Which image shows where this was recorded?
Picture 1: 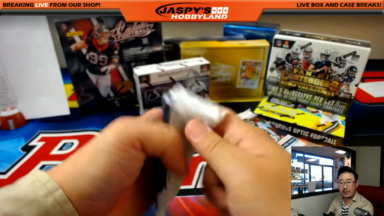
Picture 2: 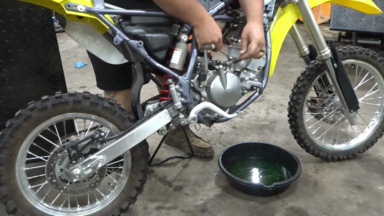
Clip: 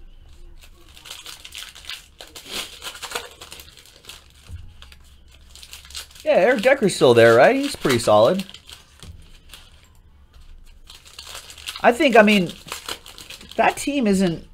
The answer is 1